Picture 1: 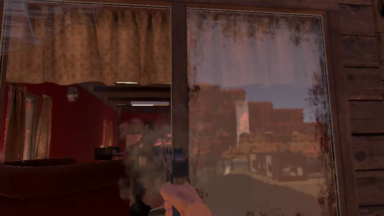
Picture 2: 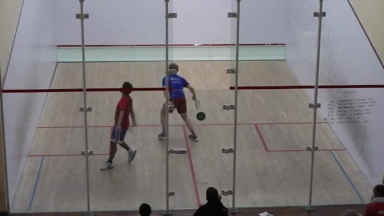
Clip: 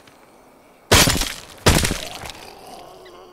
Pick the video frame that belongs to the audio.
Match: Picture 1